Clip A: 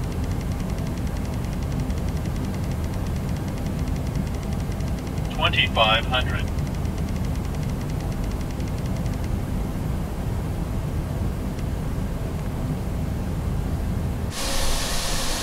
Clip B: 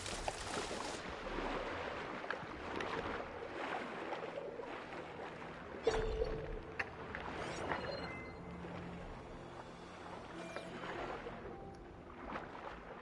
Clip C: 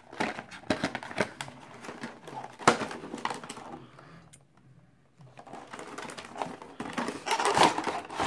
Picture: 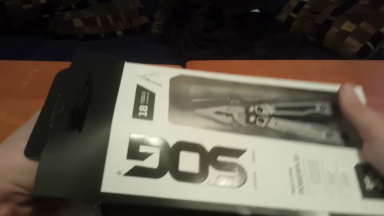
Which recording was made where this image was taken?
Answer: C